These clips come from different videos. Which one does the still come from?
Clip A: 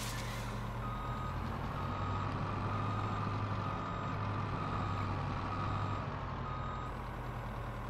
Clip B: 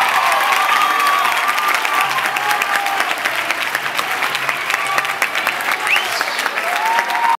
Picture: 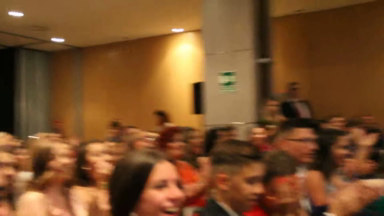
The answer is B